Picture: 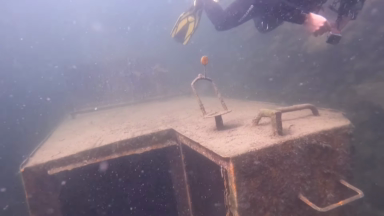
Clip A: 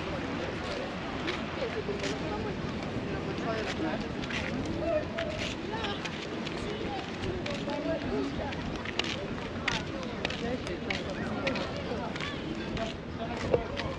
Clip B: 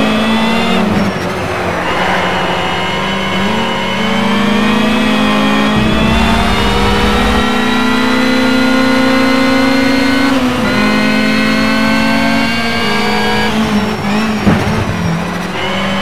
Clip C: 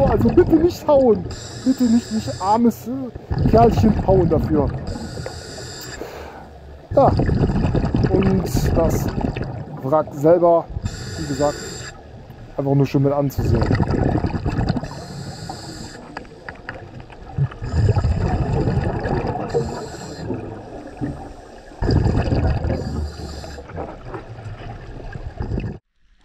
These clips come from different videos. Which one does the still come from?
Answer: C